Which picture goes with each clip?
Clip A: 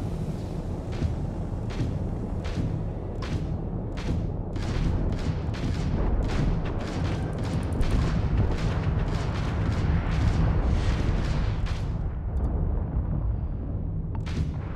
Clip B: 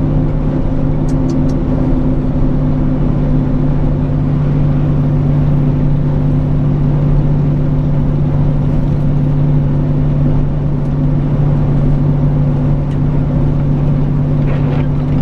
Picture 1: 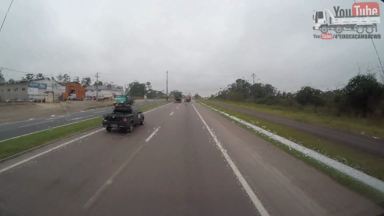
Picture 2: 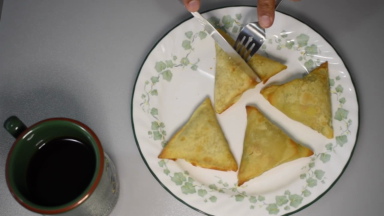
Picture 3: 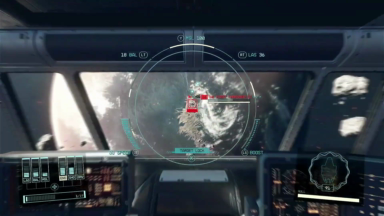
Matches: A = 3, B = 1